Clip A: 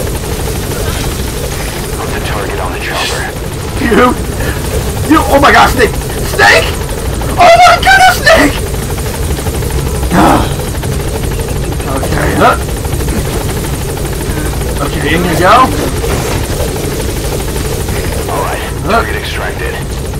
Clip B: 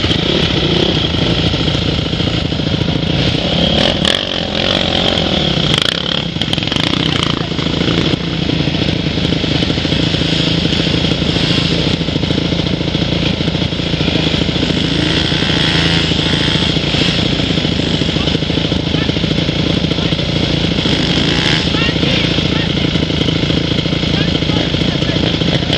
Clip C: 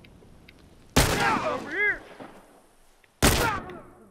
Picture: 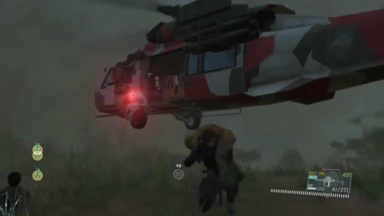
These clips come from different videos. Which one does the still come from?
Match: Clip A